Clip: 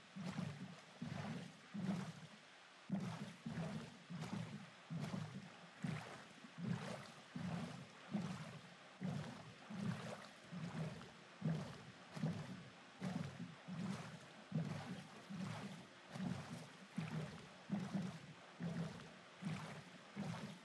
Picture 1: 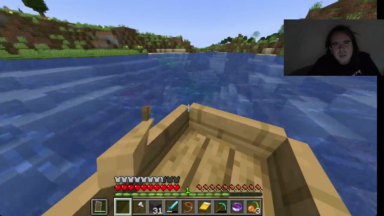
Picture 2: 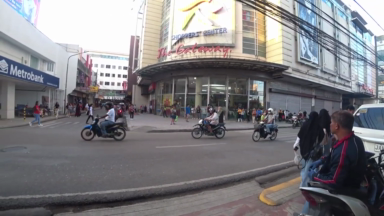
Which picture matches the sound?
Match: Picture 1